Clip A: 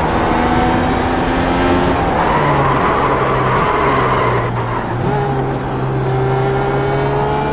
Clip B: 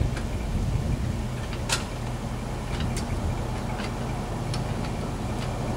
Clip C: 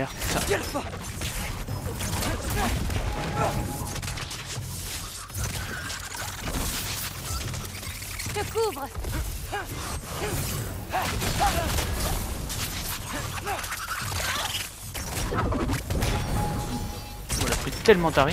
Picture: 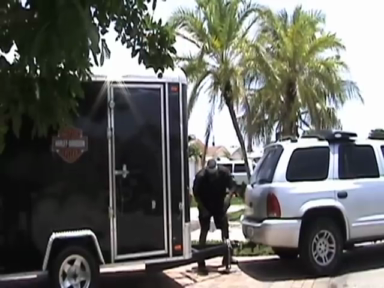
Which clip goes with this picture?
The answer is B